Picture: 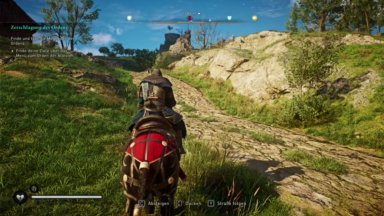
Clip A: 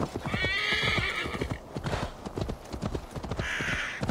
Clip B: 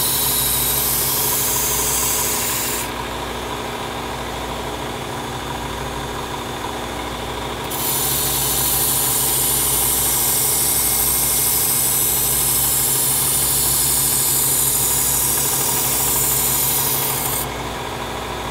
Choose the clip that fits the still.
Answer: A